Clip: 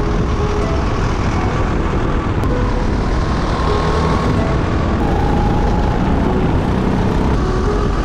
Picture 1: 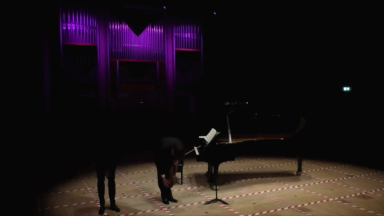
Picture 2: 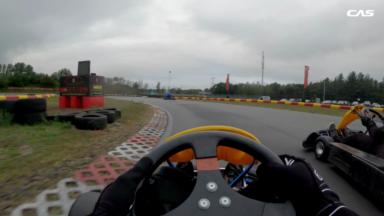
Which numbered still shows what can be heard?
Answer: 2